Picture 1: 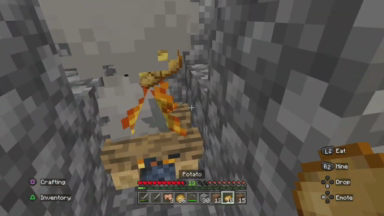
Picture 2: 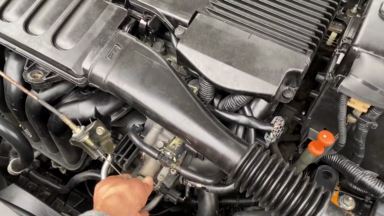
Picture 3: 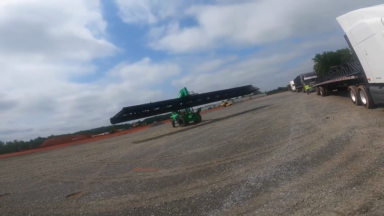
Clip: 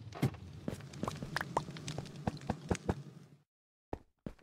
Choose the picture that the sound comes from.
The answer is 1